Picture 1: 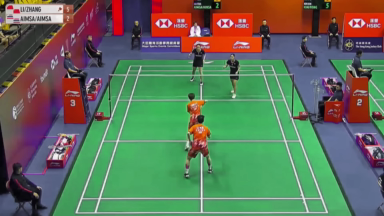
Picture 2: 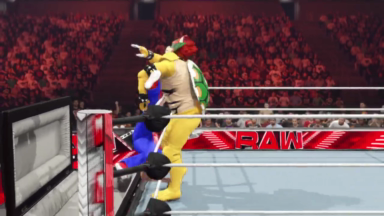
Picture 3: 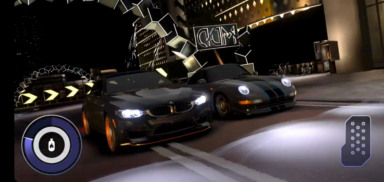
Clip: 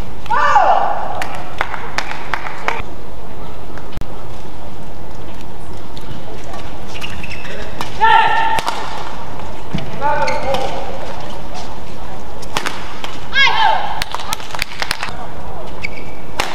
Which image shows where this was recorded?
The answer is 1